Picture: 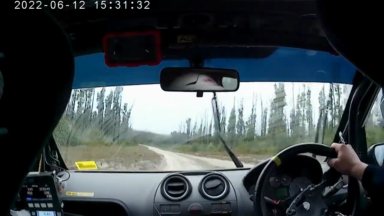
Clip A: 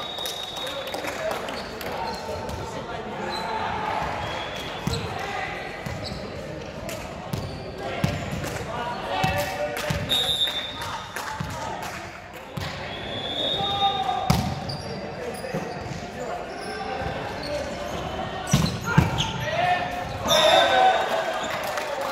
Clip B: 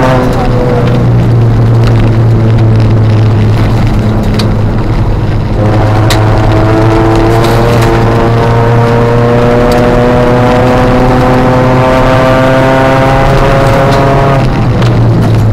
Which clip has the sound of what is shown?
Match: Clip B